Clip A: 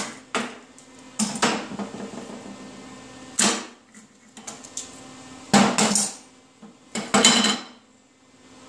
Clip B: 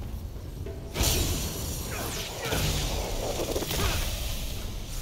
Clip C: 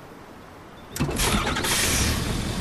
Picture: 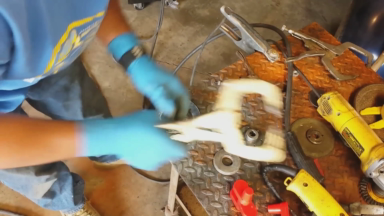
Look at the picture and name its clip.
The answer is A